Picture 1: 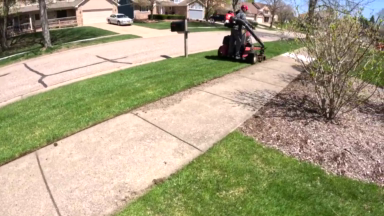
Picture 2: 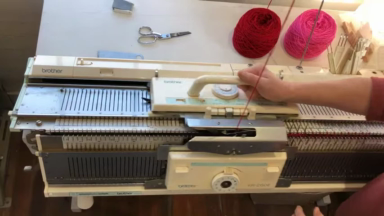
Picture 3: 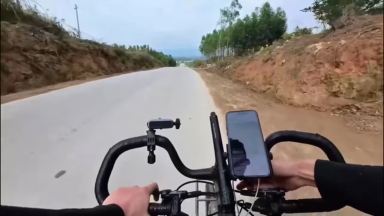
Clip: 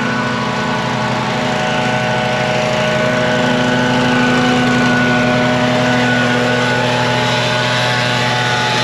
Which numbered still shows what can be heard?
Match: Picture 1